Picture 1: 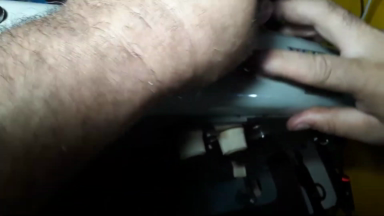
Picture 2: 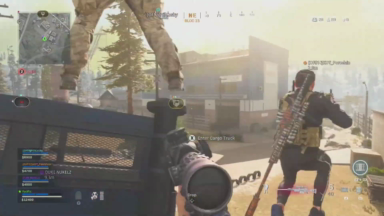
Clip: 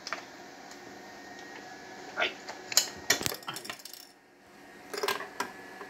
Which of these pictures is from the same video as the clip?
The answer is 1